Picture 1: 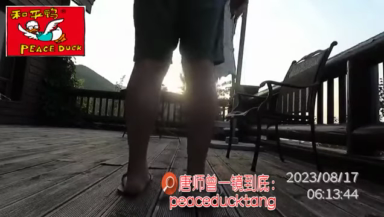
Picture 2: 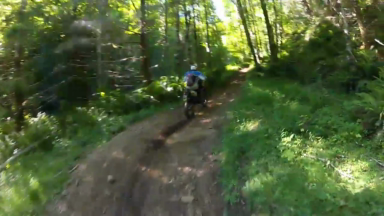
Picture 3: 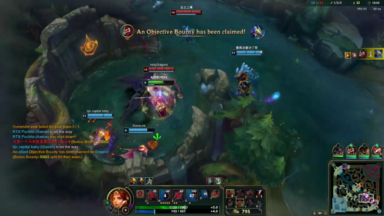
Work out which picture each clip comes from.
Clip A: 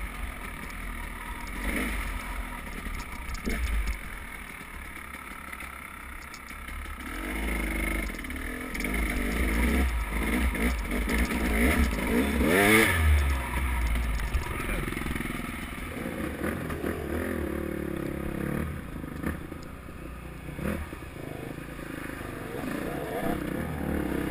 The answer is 2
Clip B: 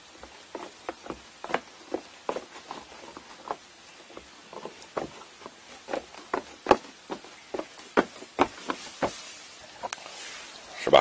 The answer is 1